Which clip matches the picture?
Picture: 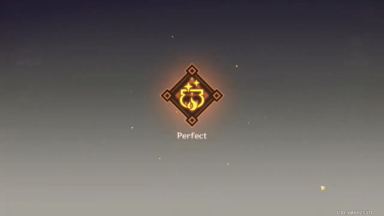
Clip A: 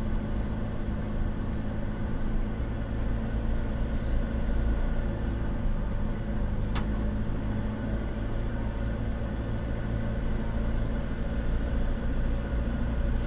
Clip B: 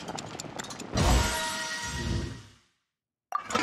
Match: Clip B